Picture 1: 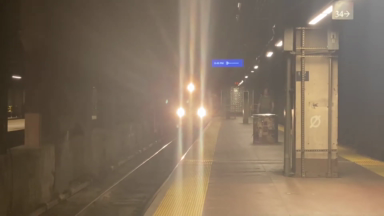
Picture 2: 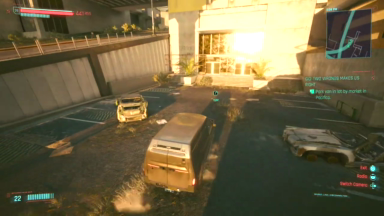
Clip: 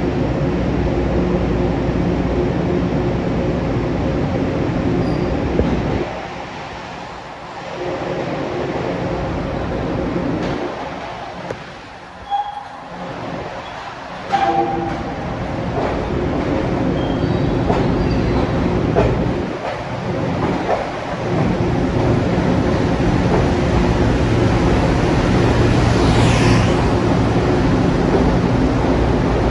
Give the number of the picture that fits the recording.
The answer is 1